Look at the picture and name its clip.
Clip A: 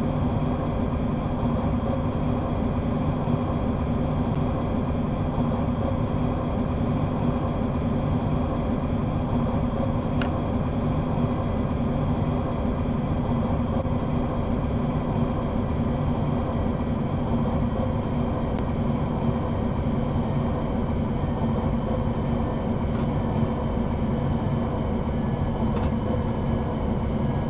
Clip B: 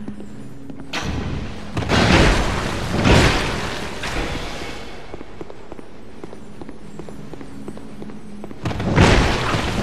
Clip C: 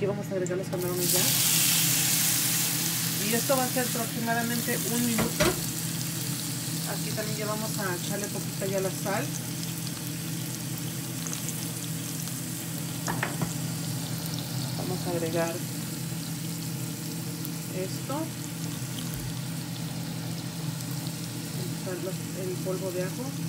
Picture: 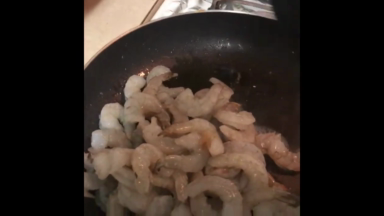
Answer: C